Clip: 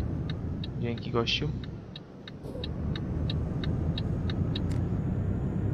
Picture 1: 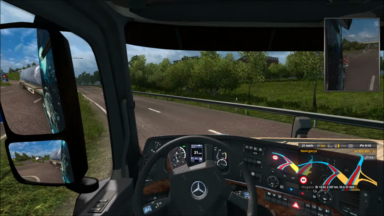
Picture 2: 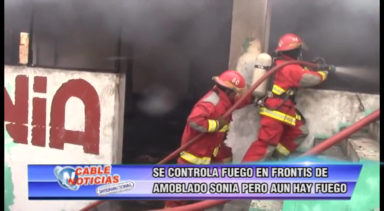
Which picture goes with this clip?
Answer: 1